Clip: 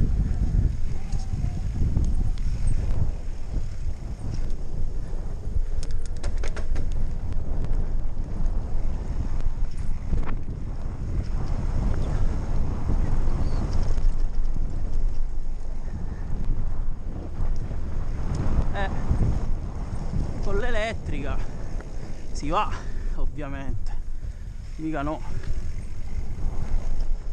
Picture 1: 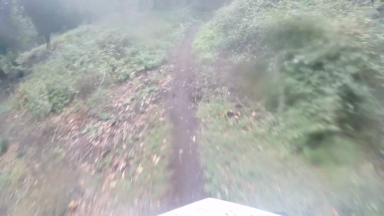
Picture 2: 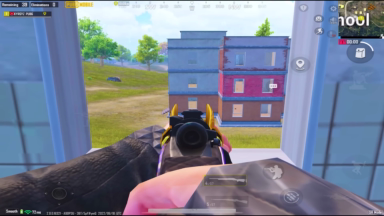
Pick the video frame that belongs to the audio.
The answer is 1